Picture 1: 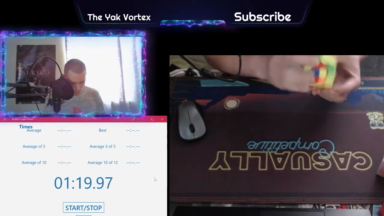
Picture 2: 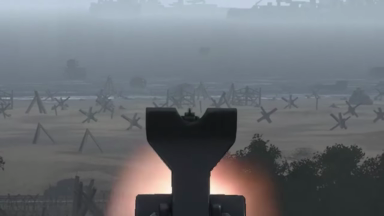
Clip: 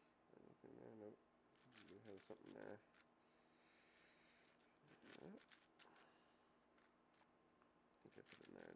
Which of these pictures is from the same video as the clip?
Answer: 1